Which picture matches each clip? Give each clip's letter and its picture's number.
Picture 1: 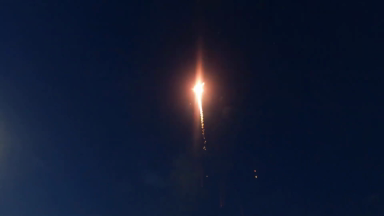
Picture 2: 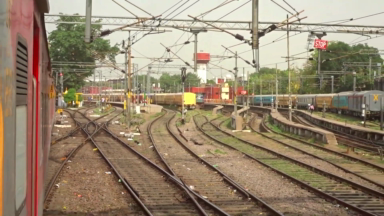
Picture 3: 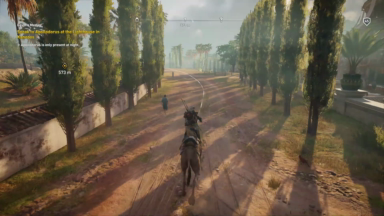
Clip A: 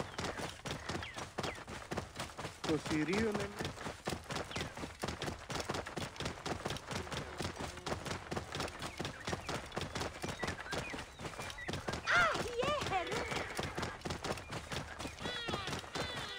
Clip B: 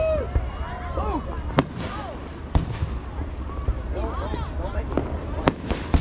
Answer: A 3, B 1